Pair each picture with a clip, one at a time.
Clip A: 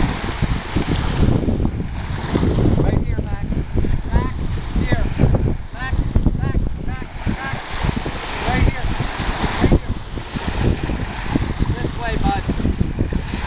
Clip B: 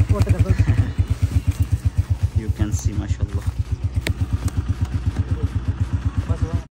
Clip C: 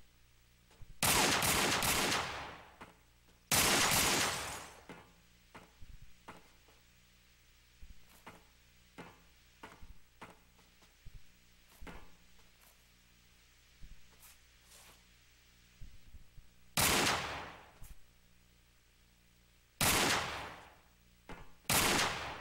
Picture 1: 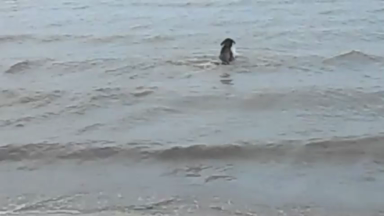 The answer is A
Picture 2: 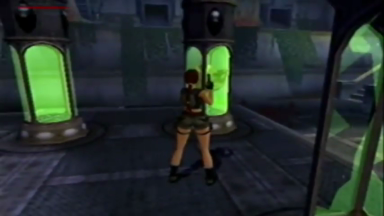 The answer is C